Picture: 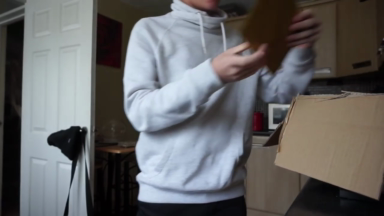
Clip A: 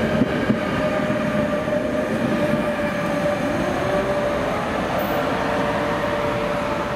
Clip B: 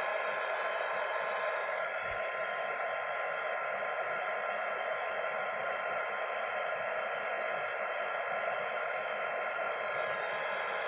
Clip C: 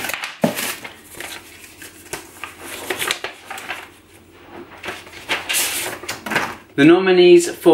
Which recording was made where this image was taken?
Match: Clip C